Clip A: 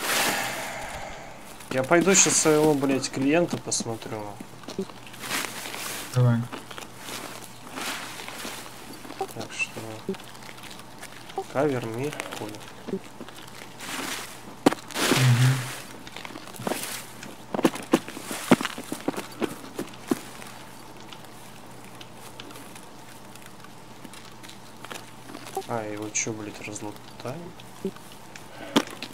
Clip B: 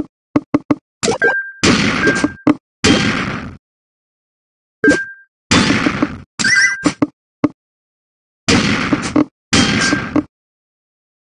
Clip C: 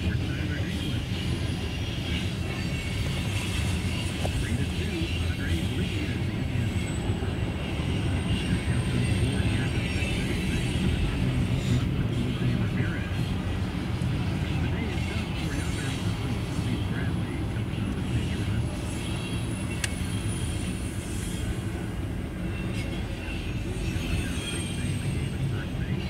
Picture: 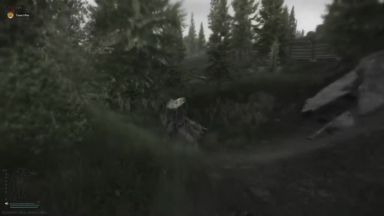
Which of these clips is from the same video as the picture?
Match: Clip A